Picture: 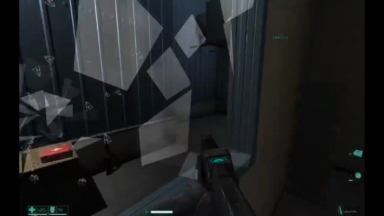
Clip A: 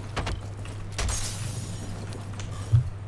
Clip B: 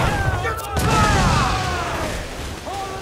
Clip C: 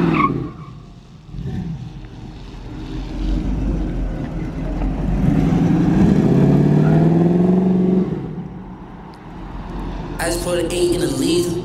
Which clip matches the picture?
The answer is A